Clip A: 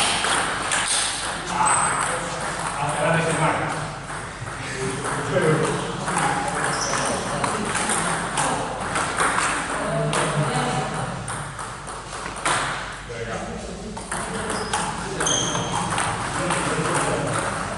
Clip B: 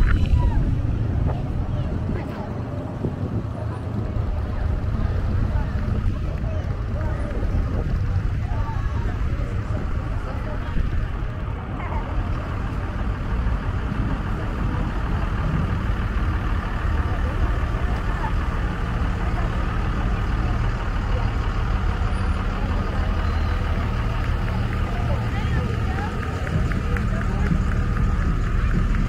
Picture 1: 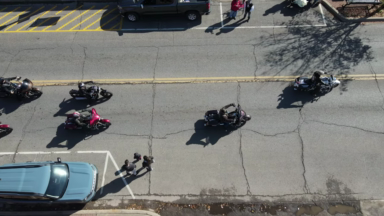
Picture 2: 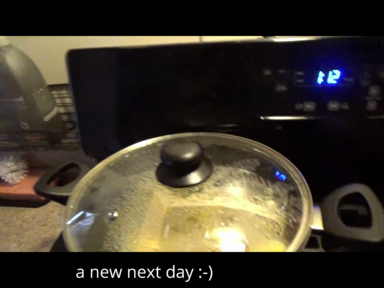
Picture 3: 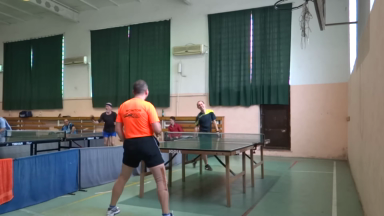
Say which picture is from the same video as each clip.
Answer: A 3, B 1